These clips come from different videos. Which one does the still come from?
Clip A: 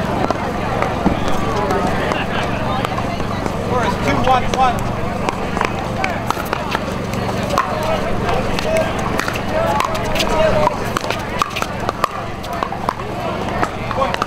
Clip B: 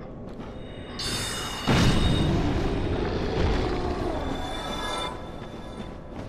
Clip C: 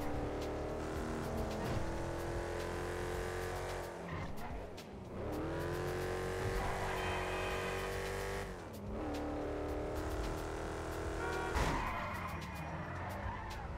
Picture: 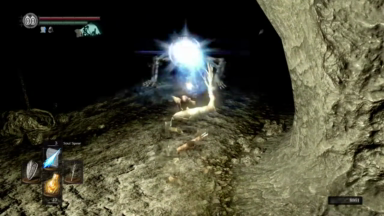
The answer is B